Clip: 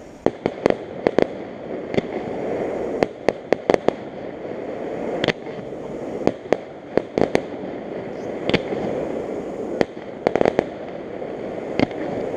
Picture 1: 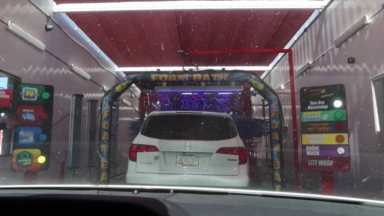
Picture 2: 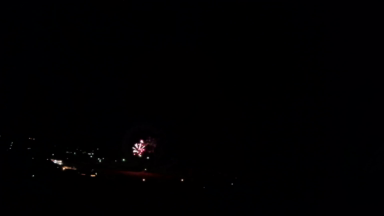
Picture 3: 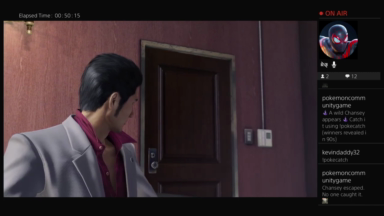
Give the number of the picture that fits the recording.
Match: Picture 2